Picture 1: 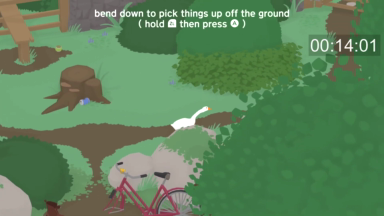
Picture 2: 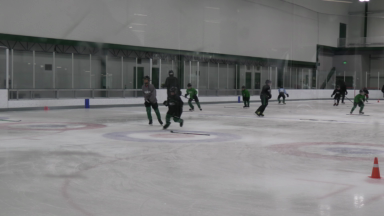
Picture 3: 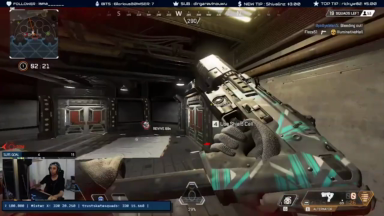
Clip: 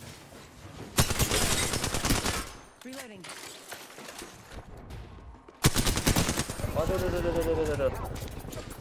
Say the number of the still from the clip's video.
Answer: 3